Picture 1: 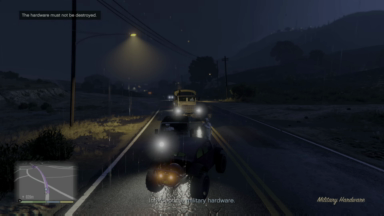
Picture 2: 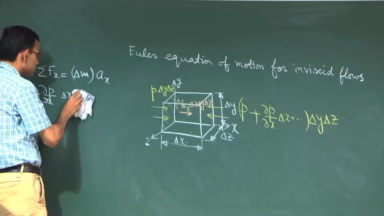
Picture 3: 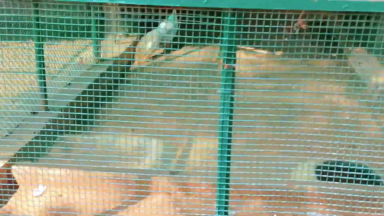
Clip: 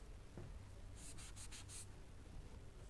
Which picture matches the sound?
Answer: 2